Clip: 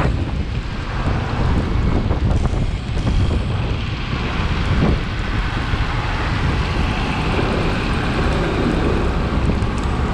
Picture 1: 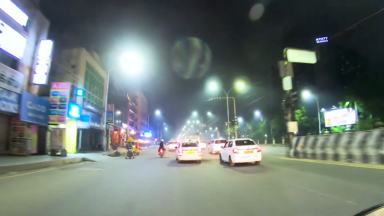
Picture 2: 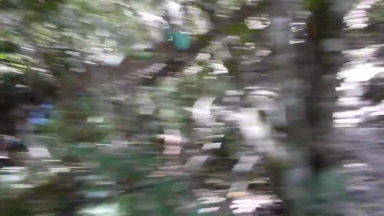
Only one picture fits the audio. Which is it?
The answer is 1